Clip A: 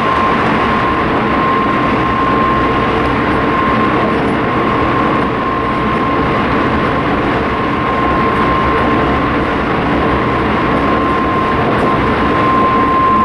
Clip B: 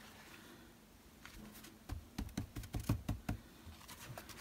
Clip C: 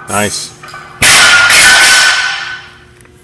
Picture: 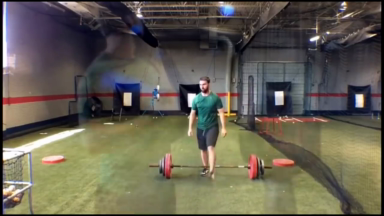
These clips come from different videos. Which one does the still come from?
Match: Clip C